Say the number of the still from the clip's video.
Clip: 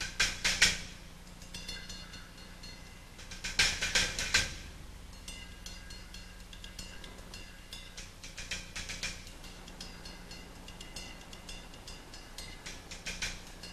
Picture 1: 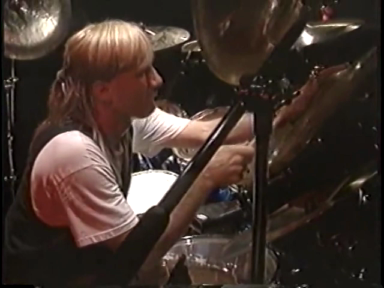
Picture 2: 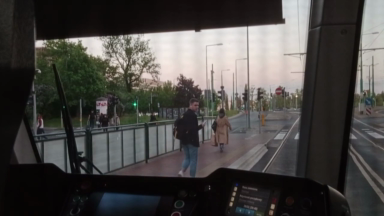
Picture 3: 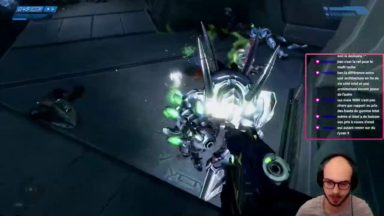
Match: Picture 1